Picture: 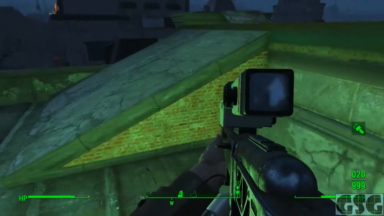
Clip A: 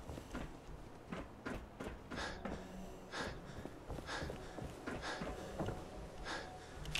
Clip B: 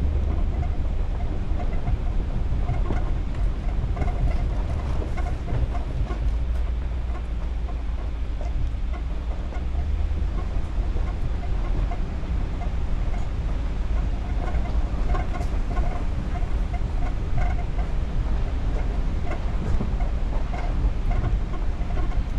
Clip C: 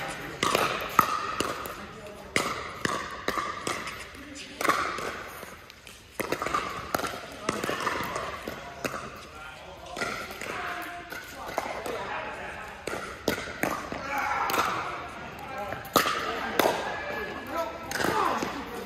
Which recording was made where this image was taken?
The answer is A